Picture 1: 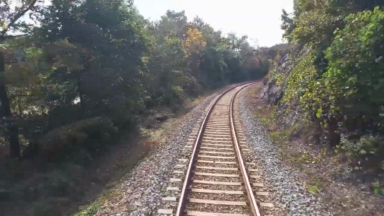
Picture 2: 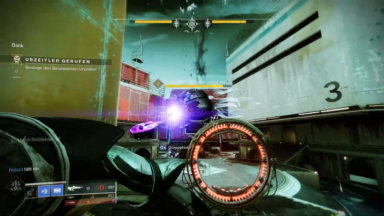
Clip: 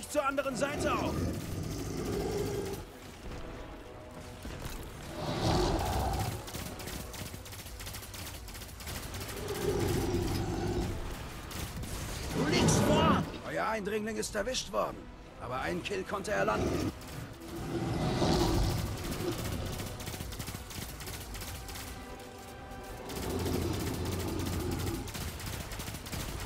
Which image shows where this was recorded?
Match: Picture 2